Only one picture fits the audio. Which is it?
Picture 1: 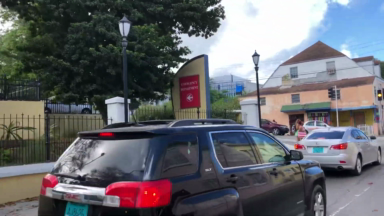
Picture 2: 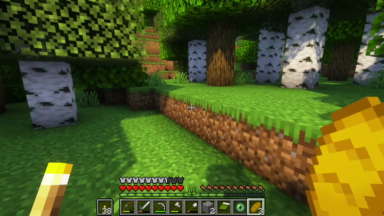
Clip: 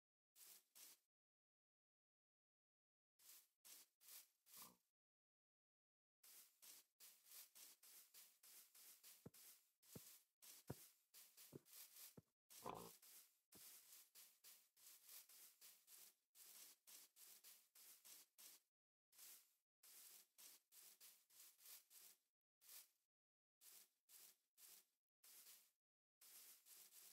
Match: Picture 2